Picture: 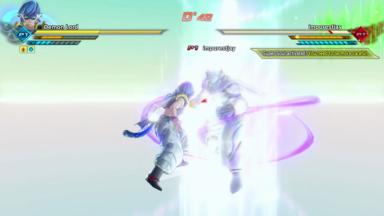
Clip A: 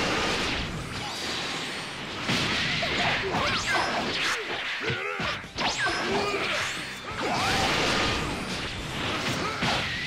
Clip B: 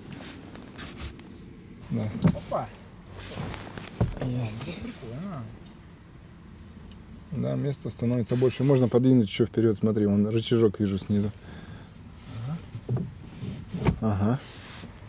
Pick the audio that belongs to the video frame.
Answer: A